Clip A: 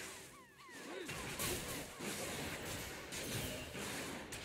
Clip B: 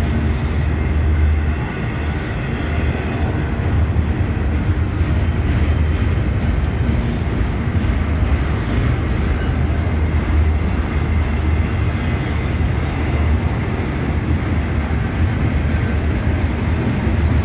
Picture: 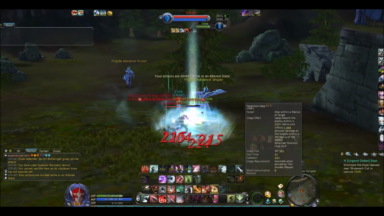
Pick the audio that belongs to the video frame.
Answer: A